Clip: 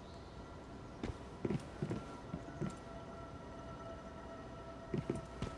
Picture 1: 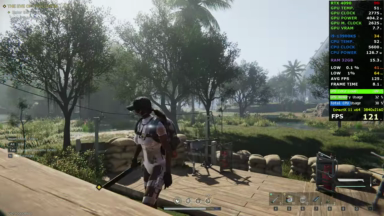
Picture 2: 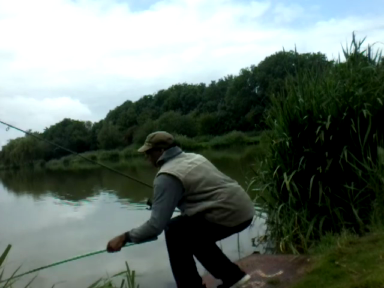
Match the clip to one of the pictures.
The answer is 1